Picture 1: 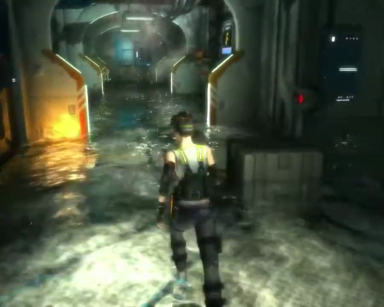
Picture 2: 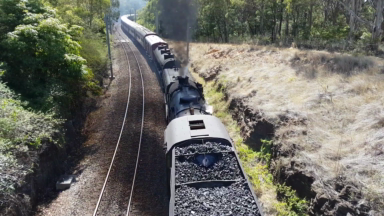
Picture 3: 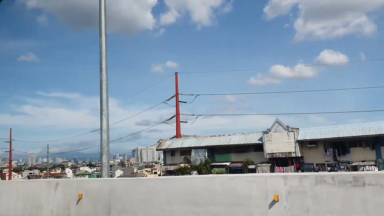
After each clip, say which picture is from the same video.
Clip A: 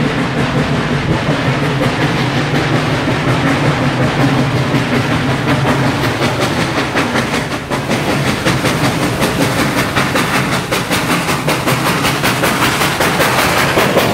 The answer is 2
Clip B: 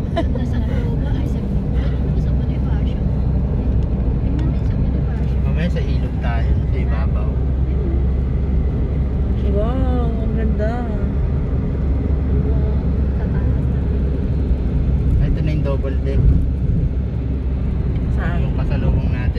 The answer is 3